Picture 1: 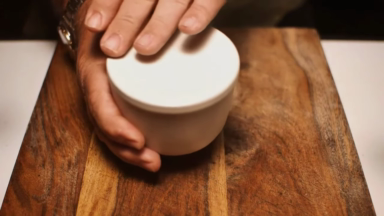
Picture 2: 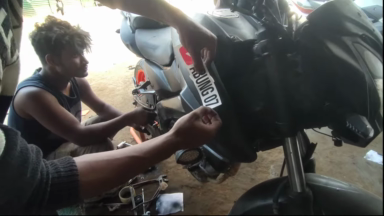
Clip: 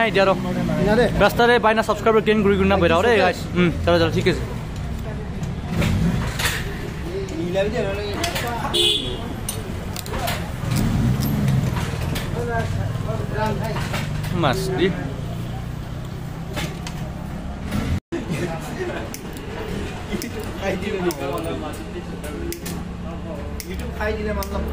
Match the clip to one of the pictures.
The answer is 2